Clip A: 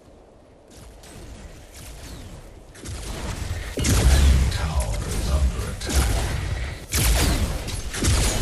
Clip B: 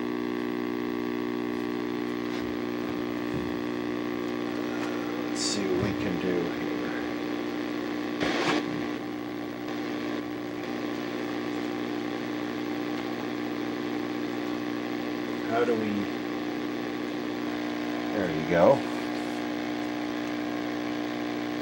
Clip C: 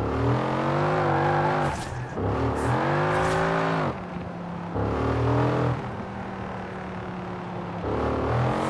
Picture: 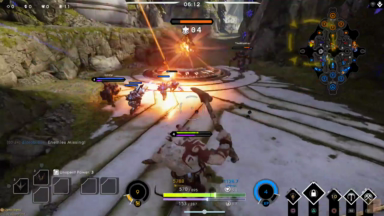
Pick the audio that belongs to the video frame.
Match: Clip A